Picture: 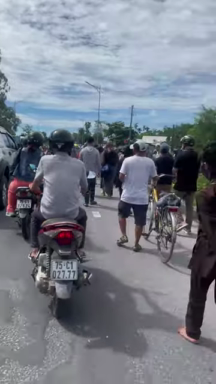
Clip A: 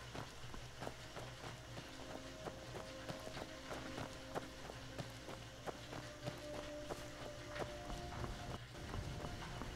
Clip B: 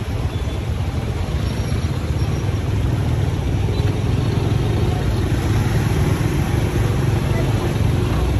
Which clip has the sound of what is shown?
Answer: B